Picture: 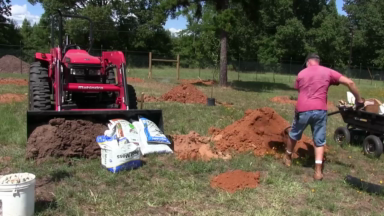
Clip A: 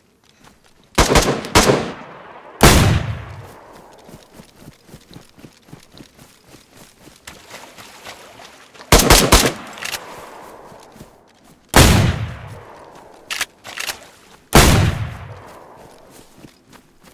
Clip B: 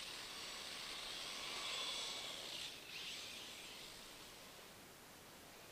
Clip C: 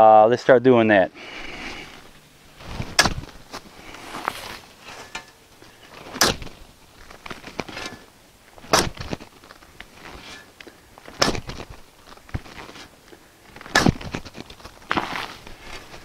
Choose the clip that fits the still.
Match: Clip C